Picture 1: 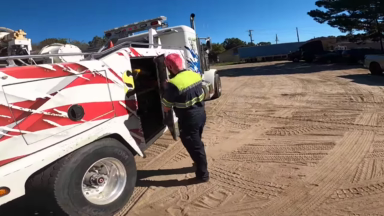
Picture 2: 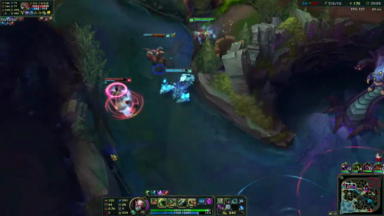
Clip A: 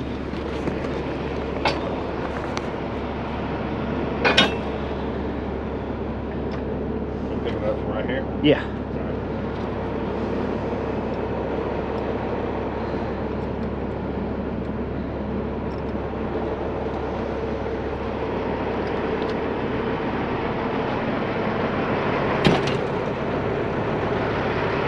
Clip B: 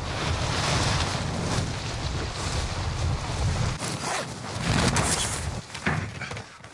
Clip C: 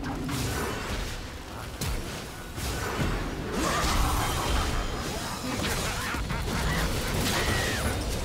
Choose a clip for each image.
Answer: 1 A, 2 C